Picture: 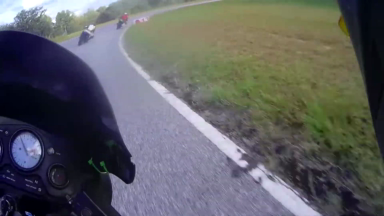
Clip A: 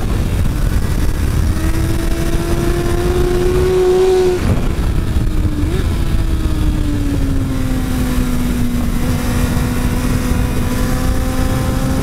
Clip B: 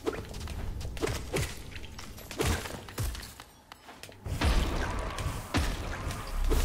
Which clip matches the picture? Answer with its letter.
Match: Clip A